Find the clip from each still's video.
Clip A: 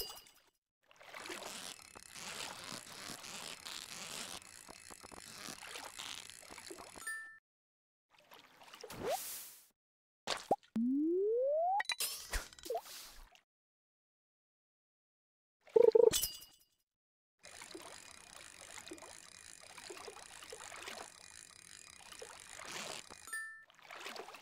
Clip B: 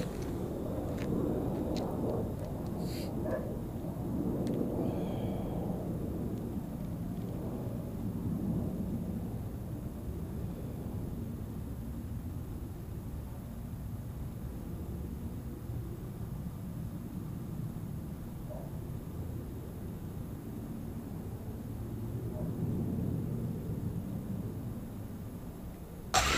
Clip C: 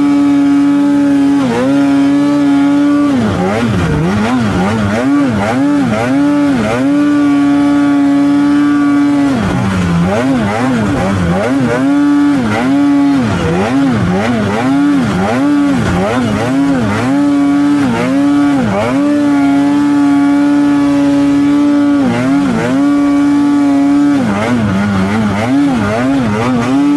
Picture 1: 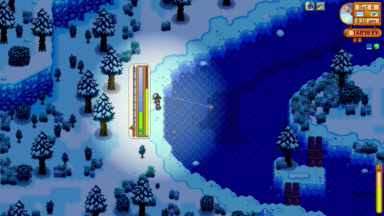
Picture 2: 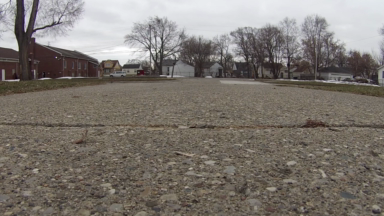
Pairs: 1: A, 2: B